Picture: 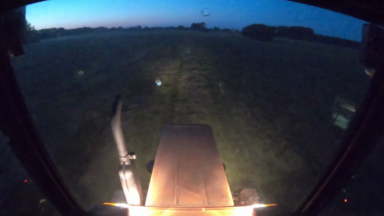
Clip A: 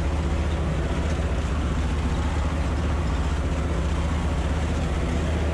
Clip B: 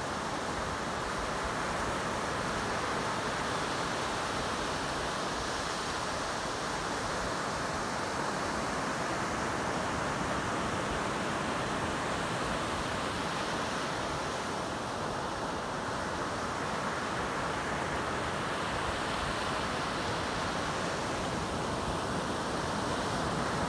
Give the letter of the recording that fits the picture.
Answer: A